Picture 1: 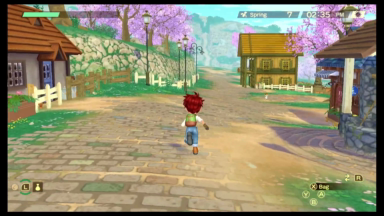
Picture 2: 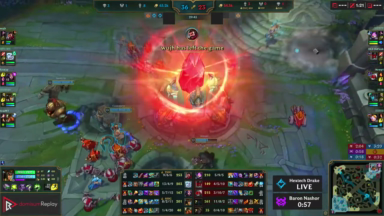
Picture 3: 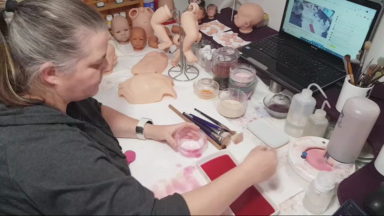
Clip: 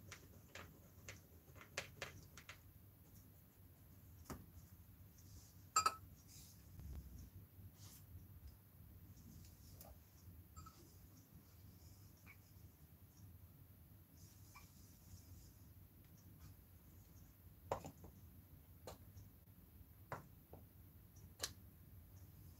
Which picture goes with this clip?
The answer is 3